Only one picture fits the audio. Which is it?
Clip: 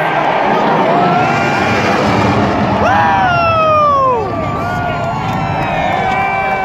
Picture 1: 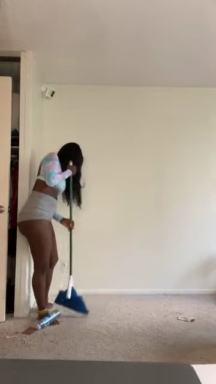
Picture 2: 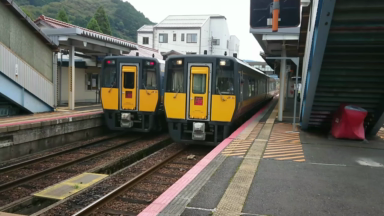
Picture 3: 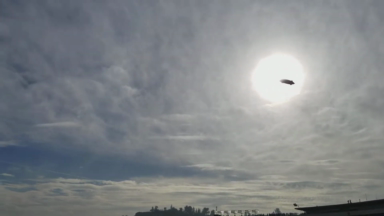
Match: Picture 3